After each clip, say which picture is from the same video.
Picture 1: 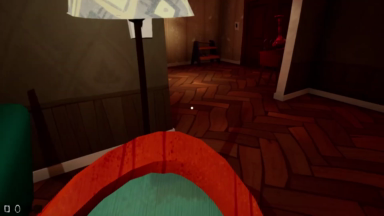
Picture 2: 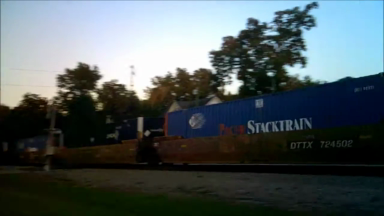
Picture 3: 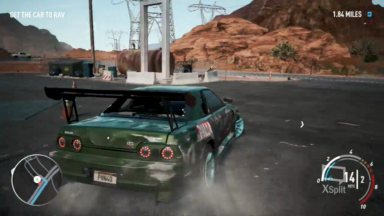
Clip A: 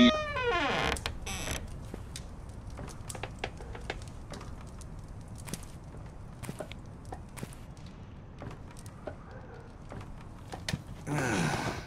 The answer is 1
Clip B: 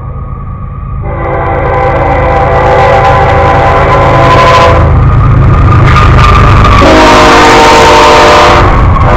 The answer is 2